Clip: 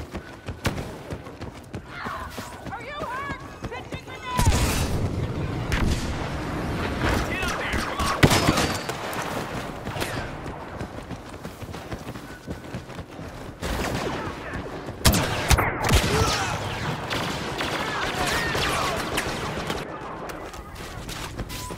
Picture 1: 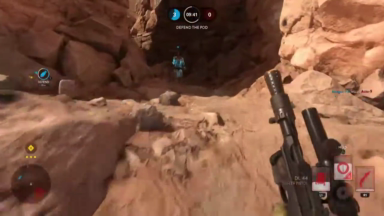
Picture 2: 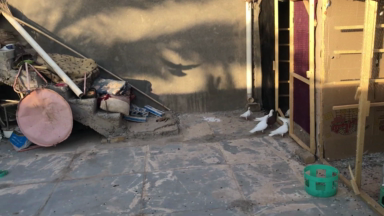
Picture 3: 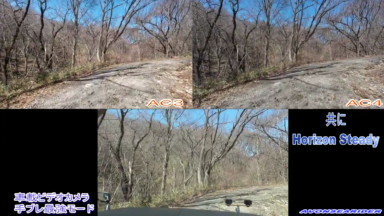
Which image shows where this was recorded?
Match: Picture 1